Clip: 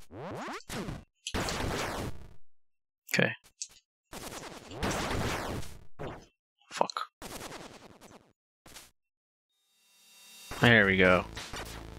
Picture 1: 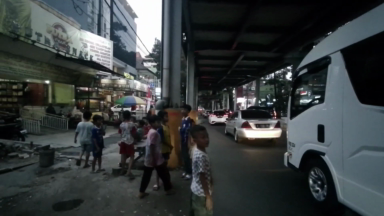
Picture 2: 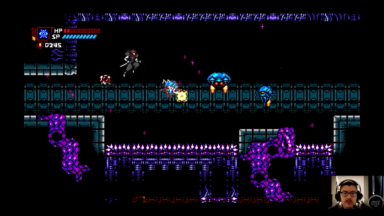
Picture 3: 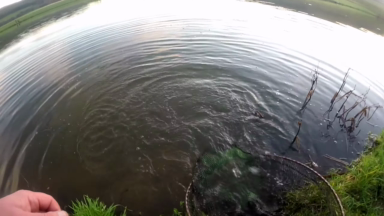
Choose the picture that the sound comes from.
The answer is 2